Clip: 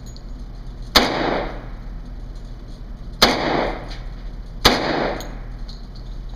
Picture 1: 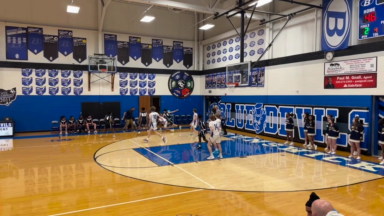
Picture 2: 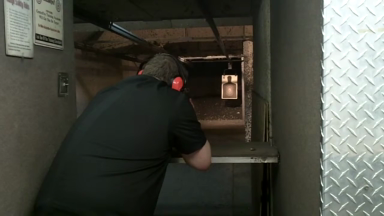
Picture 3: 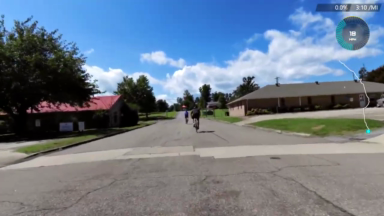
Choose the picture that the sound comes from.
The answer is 2